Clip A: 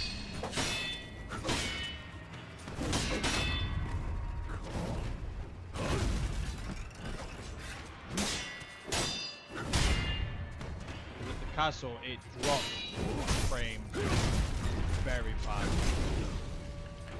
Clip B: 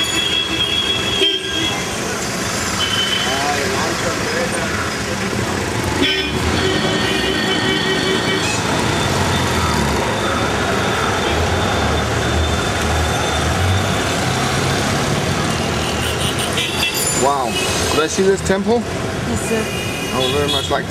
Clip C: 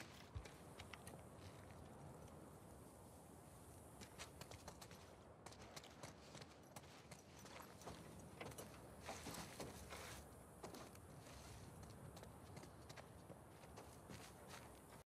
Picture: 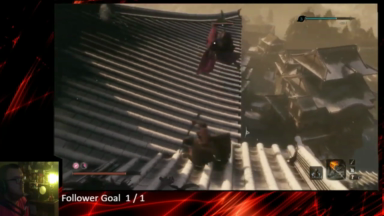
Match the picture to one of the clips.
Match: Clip A